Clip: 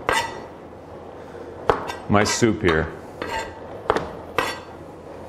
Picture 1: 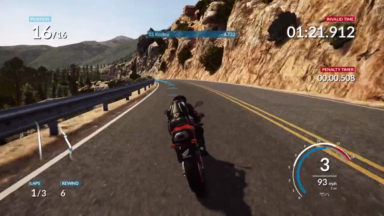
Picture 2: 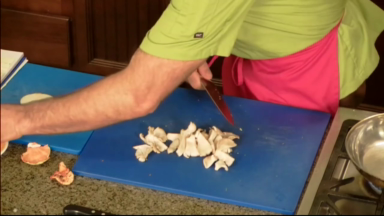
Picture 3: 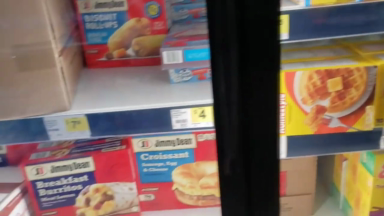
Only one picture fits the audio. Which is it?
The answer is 2